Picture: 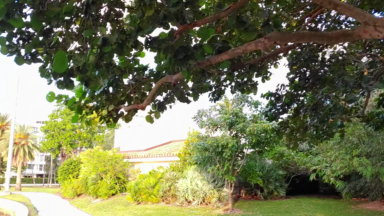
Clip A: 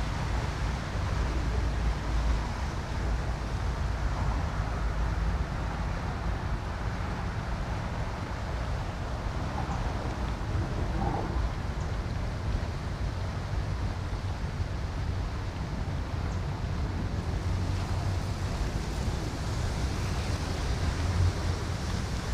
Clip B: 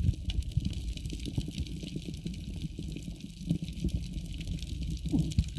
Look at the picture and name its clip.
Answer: A